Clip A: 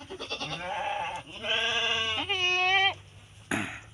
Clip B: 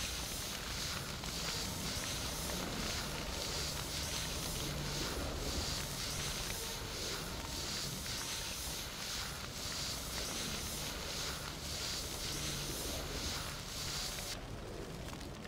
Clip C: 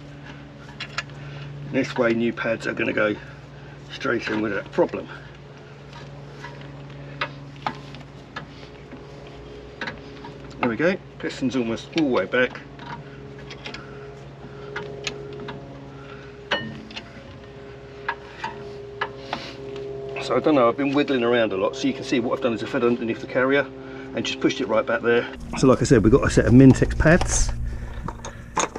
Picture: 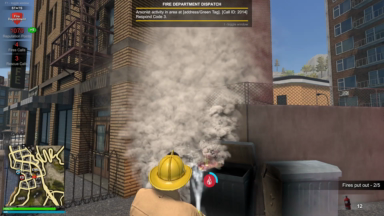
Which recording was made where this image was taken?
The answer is B